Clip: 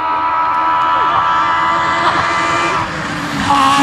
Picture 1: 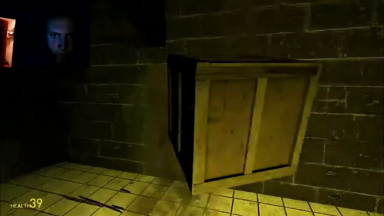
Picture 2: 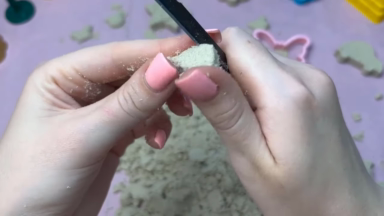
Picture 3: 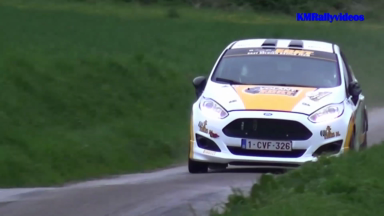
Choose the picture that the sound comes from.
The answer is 3